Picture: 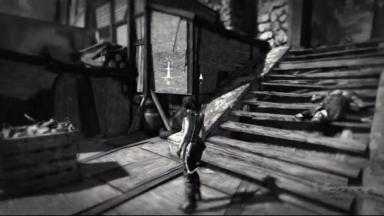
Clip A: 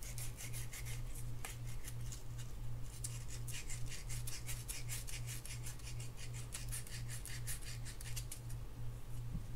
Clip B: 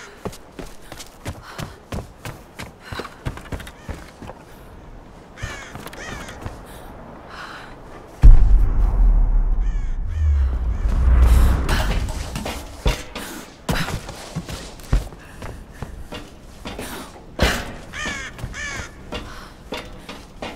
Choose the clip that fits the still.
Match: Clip B